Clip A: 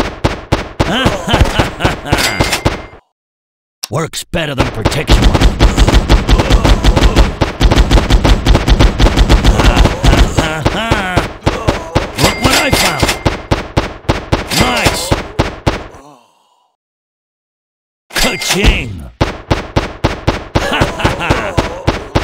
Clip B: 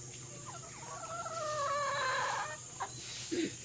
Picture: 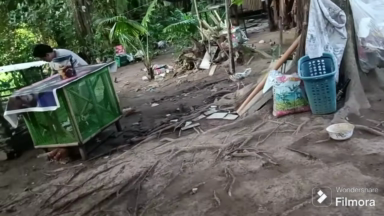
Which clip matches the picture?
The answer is B